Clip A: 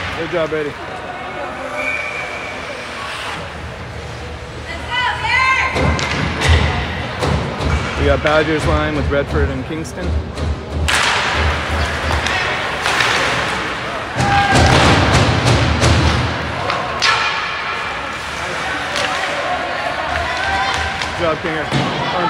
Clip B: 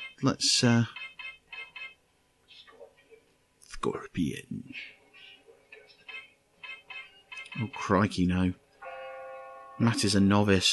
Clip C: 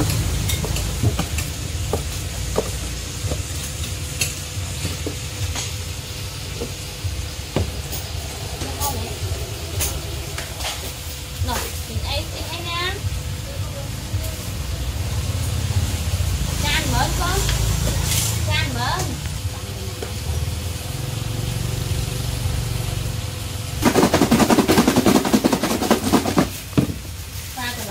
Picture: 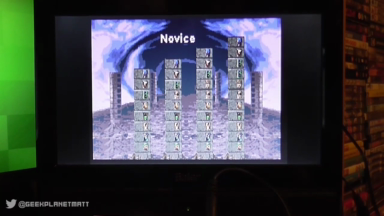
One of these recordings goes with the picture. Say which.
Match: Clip B